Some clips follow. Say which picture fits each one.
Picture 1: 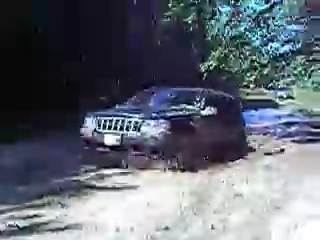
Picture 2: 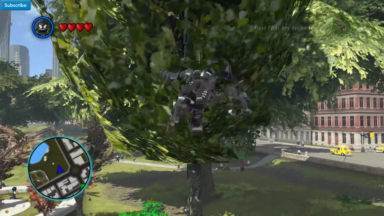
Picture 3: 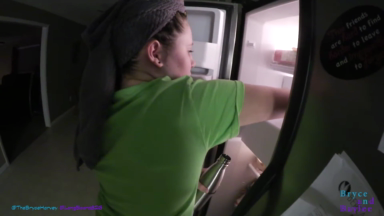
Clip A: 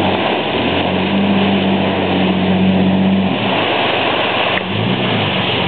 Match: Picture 1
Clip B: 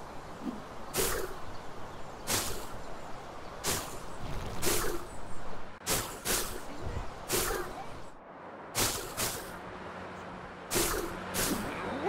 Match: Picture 2